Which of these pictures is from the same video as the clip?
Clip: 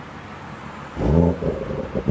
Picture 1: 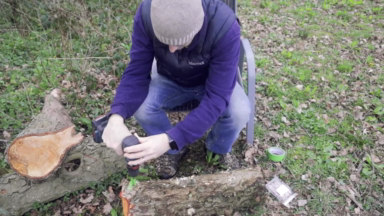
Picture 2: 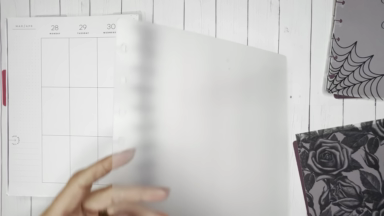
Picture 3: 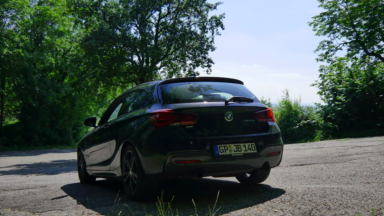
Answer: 3